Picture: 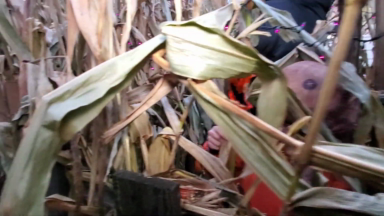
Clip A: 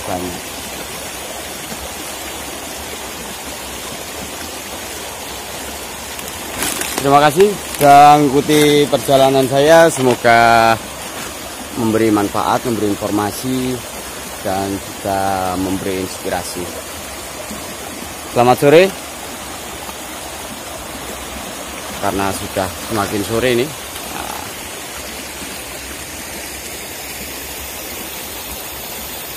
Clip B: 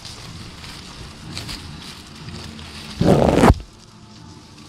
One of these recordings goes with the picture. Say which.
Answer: B